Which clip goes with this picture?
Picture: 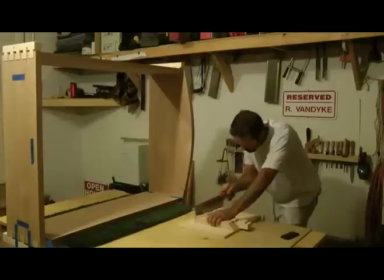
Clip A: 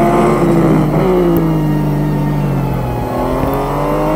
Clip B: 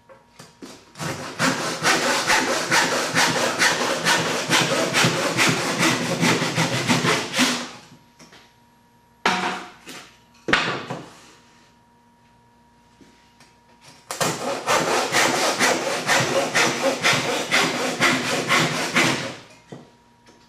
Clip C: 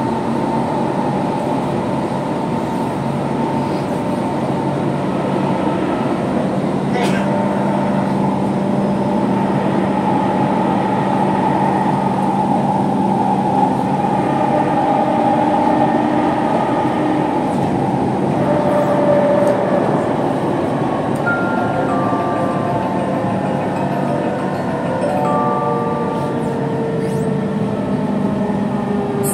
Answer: B